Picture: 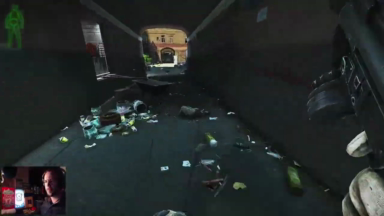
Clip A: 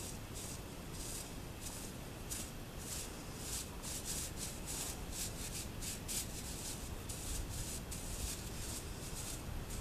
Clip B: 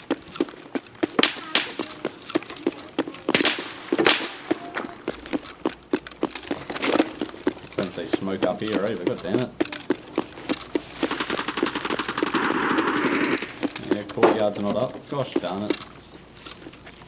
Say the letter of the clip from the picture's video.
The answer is B